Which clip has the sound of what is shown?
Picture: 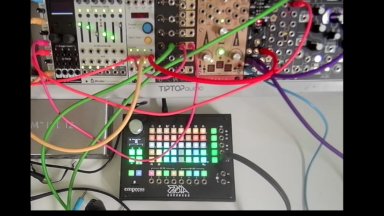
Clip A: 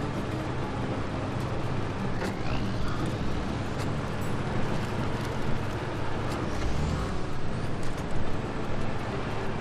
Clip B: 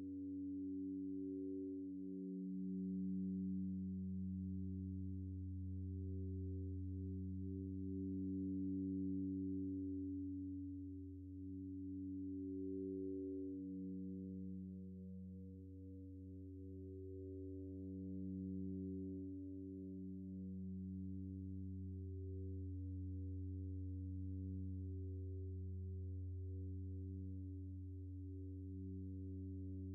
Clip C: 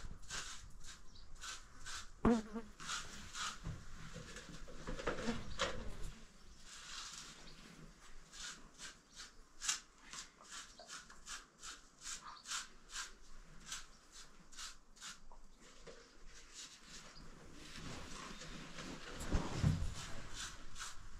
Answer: B